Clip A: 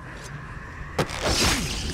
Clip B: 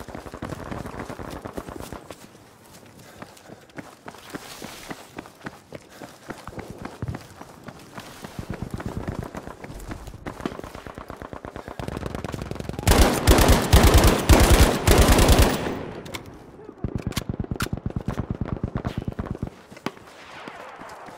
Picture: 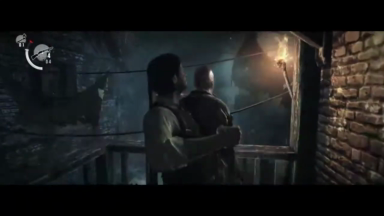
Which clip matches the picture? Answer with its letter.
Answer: A